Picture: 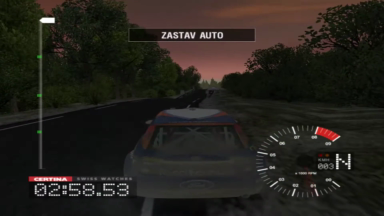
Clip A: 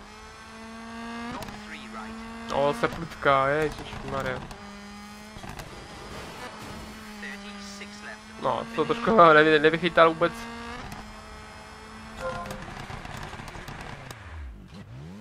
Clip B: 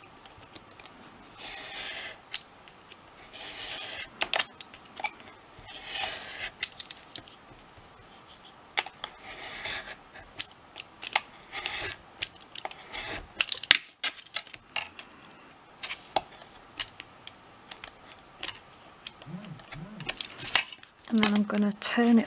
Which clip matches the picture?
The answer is A